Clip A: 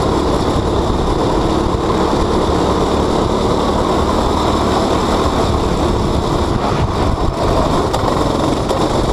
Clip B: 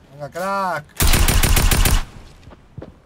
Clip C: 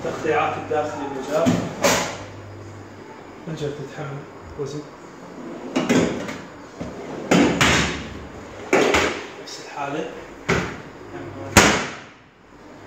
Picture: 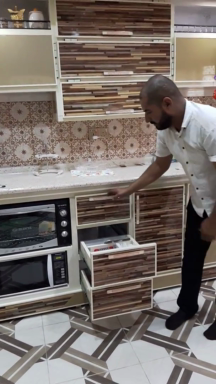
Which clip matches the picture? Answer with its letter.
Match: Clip C